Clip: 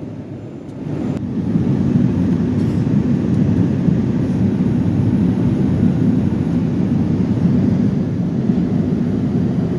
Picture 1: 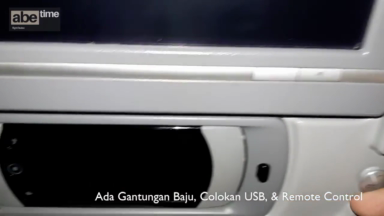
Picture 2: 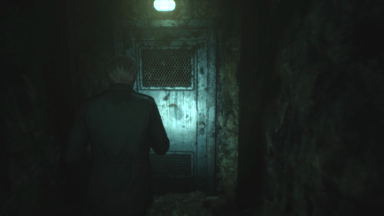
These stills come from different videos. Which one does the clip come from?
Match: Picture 1